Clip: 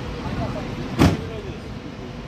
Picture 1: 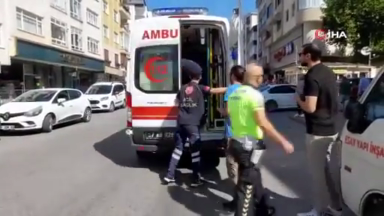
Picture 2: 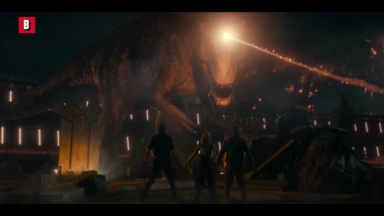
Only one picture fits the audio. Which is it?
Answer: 1